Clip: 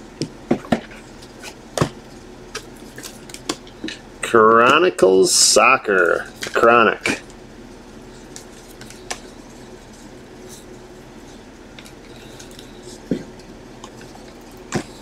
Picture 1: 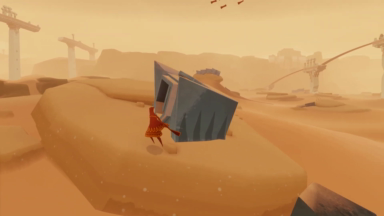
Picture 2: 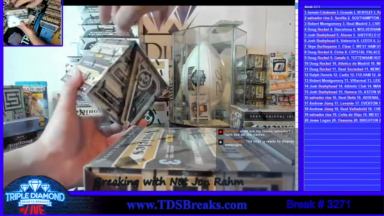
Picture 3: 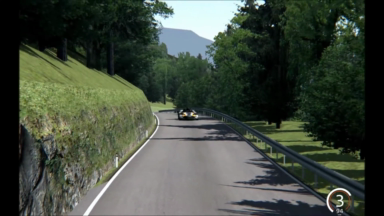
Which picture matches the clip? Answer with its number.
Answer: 2